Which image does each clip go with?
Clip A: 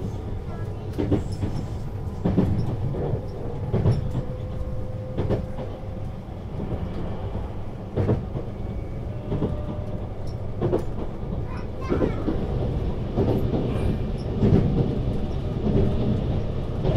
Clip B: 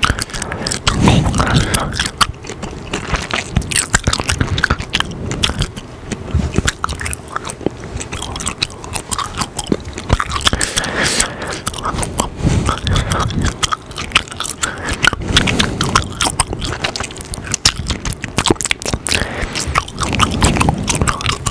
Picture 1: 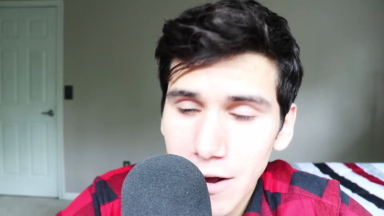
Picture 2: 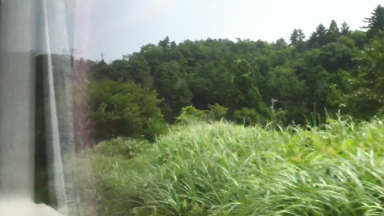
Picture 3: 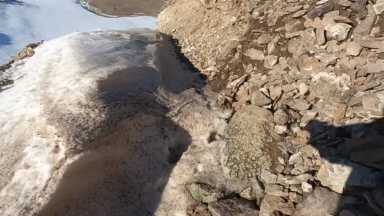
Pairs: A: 2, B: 1